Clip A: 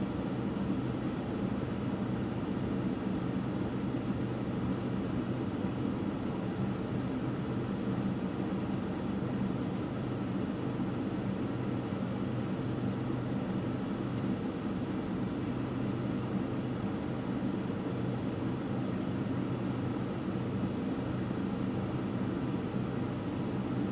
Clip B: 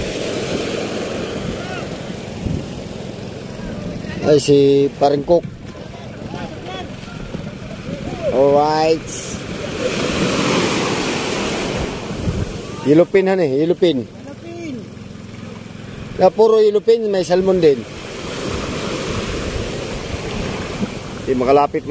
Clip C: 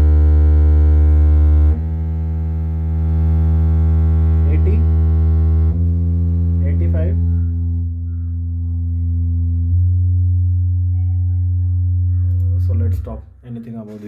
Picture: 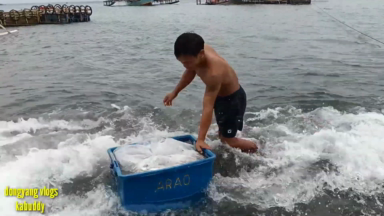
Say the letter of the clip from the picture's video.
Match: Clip B